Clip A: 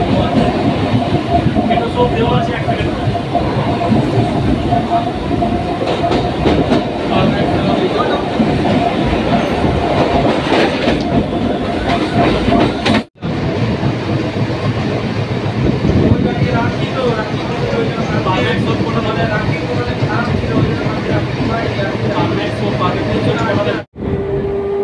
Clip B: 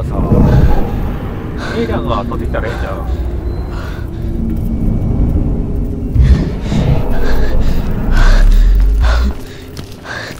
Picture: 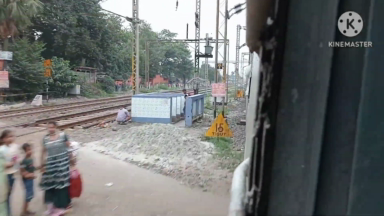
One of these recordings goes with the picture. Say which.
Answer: A